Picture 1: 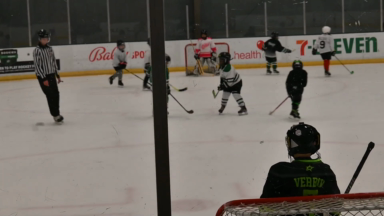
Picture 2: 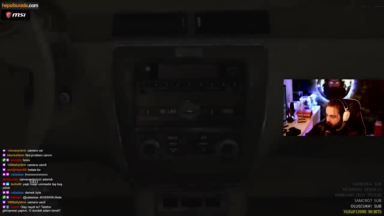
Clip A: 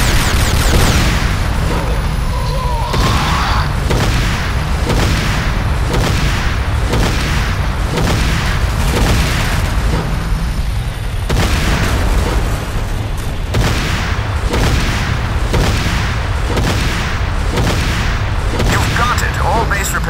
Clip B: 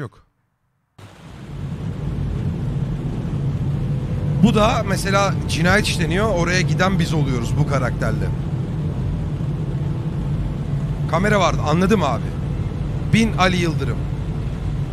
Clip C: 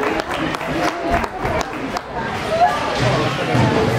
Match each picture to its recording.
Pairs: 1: C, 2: B